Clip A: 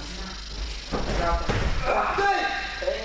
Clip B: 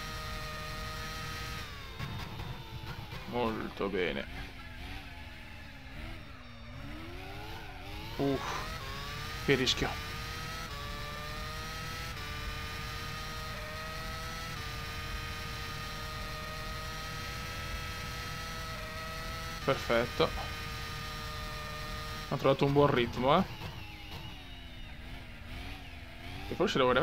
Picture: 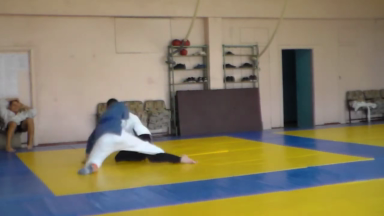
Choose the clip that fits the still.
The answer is A